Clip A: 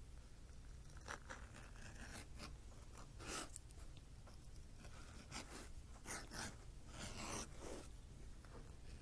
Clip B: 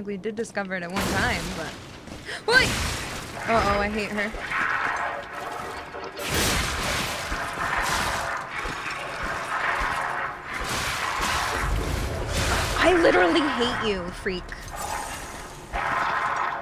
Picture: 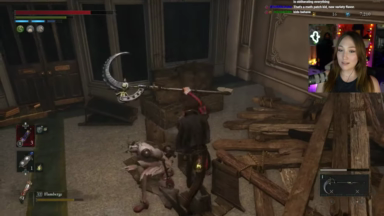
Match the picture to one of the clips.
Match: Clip B